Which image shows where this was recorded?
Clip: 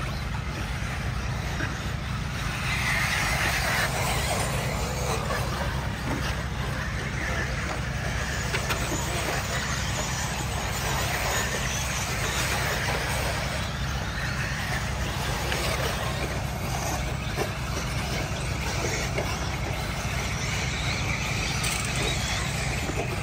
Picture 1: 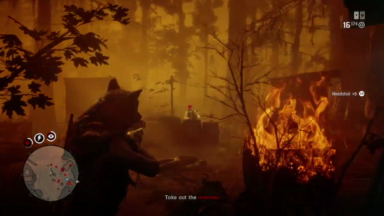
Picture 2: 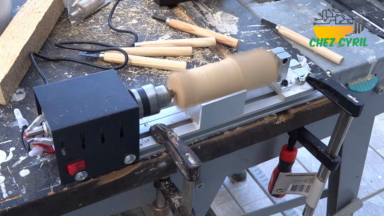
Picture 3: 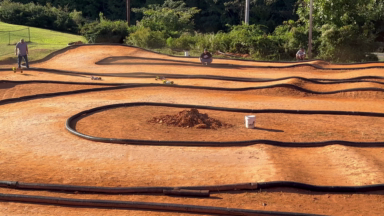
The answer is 3